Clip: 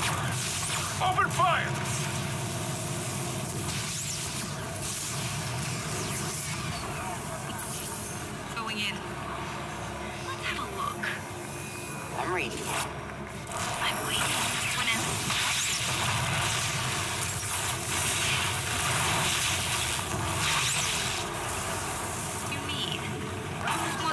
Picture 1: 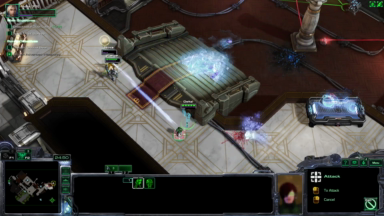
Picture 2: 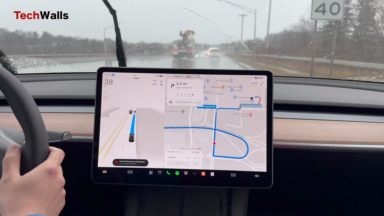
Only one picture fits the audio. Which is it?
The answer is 1